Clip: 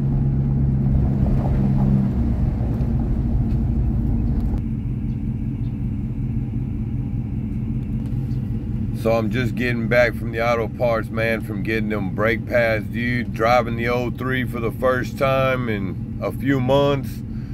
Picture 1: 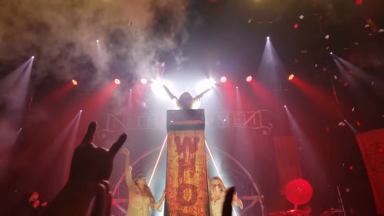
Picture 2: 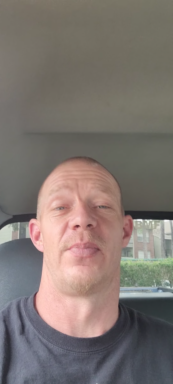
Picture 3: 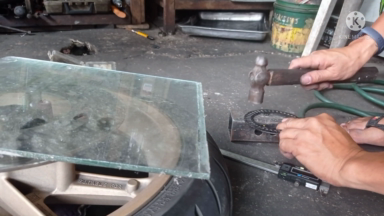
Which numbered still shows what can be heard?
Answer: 2